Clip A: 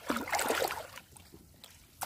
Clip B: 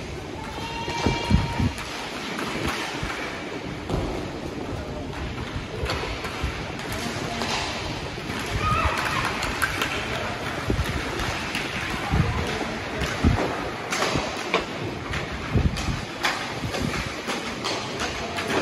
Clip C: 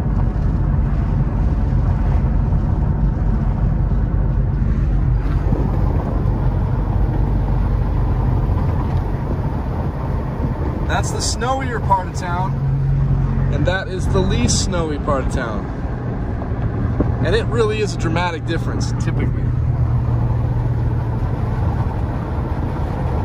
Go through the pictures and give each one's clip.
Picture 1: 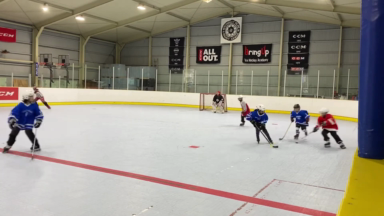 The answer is B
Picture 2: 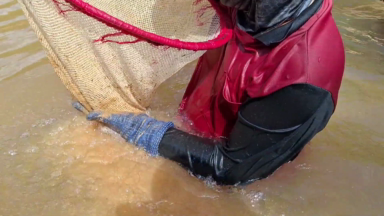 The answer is A